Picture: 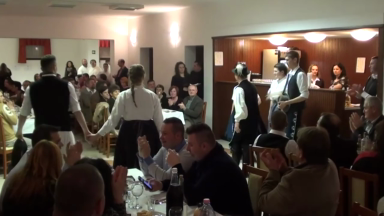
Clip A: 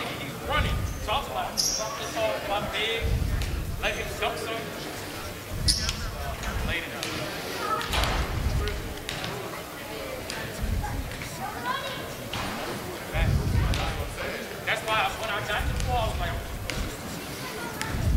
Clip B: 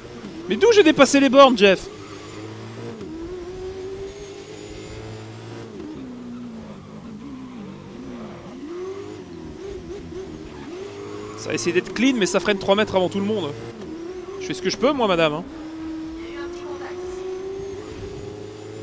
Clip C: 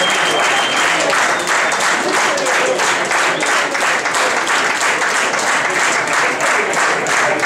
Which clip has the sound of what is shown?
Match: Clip C